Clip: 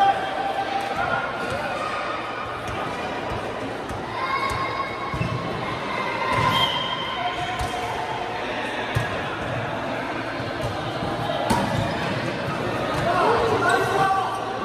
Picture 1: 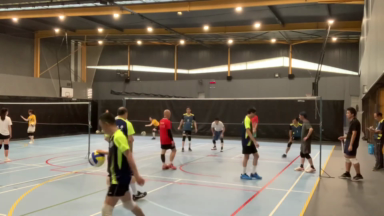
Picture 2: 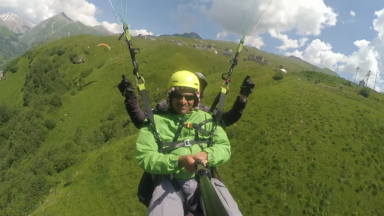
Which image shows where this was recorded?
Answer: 1